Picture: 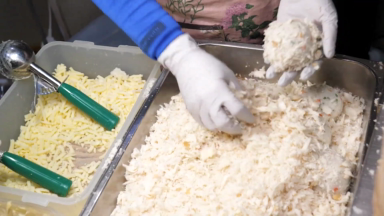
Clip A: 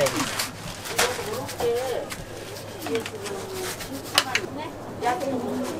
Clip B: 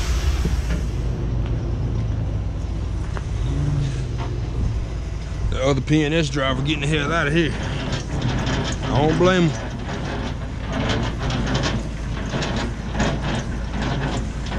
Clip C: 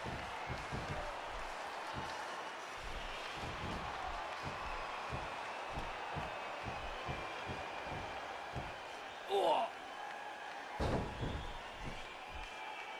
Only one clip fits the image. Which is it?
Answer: A